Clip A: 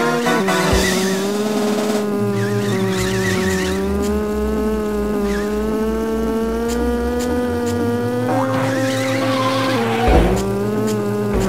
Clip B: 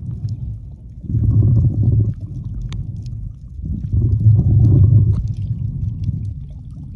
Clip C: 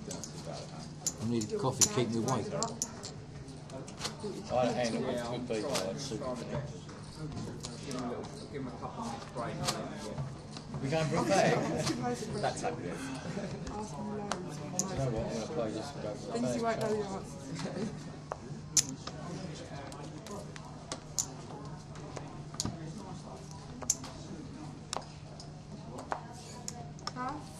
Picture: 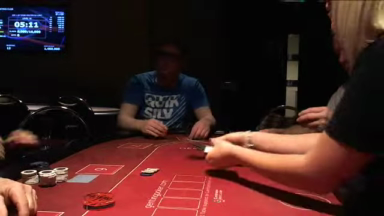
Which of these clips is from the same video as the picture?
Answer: C